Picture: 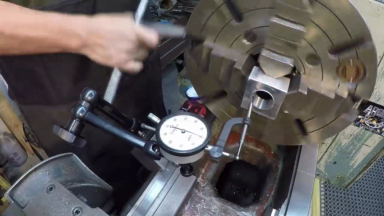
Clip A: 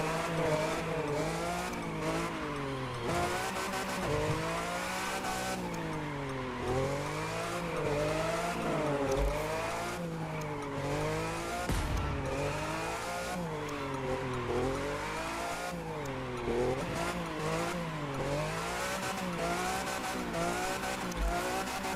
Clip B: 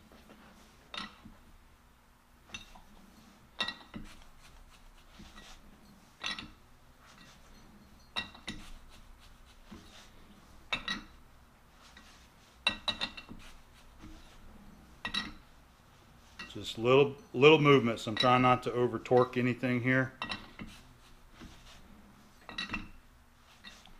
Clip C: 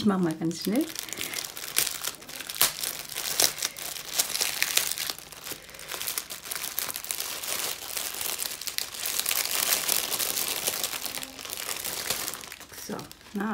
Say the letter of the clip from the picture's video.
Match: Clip B